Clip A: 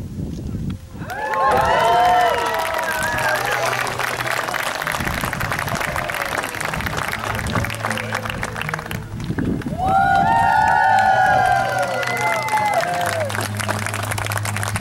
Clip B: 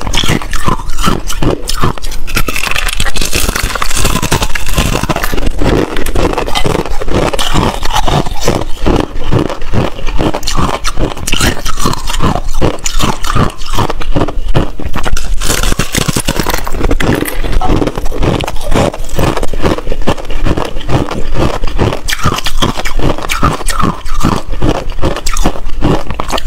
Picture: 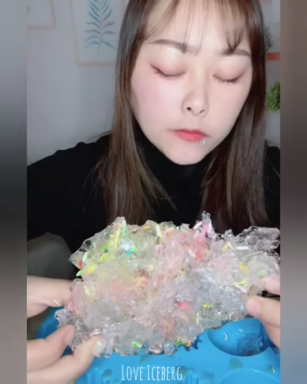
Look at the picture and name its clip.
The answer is B